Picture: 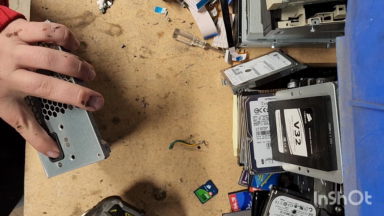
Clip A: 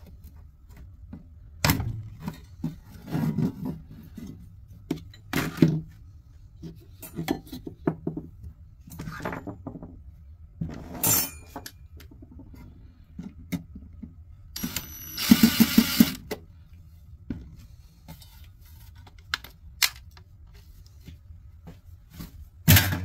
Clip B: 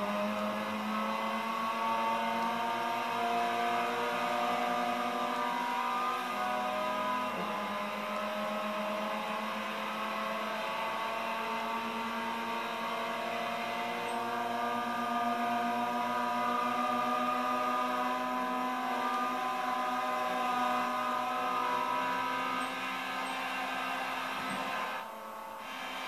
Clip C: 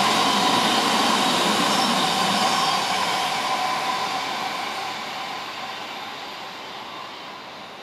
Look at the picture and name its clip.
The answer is A